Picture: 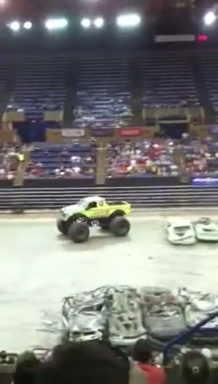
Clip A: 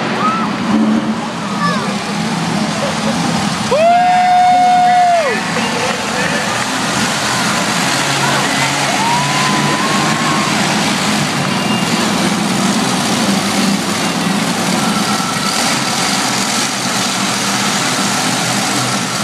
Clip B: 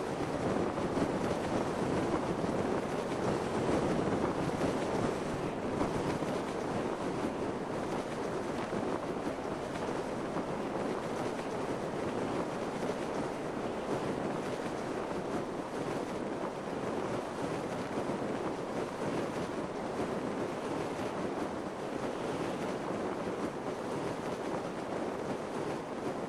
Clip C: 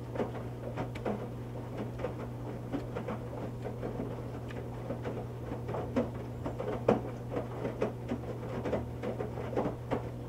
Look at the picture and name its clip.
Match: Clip A